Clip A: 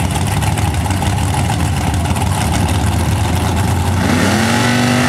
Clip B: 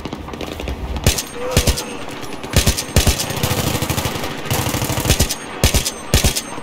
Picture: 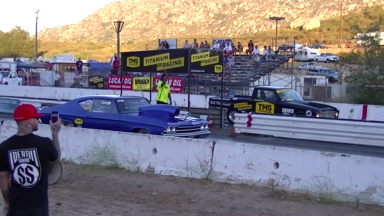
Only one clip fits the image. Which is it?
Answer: A